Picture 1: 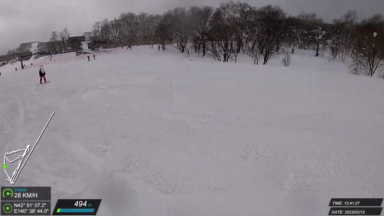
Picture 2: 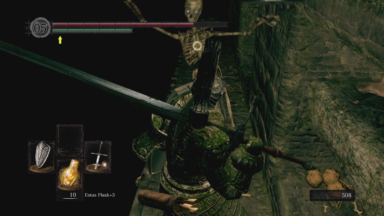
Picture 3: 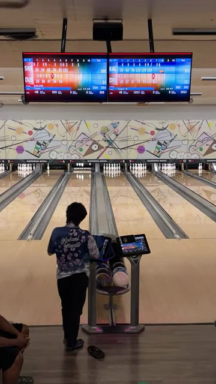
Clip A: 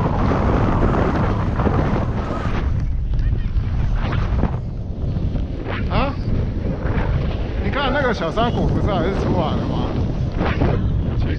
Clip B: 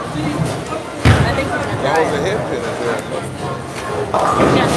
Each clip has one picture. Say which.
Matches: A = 1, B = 3